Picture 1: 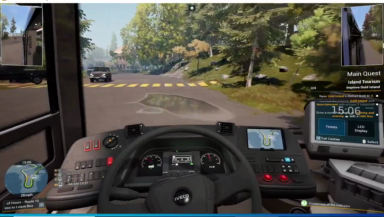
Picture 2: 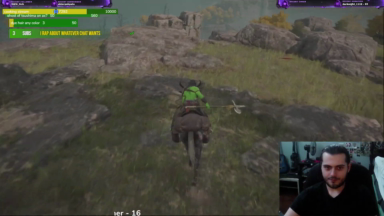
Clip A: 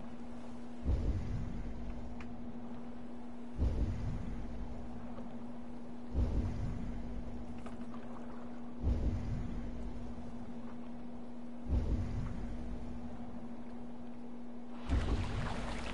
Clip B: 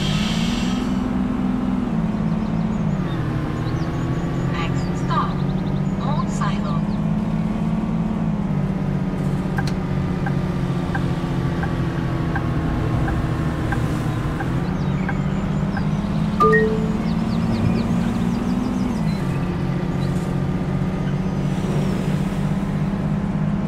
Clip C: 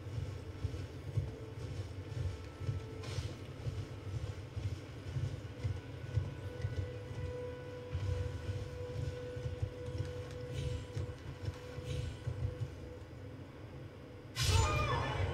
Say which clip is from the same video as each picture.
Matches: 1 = B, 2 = C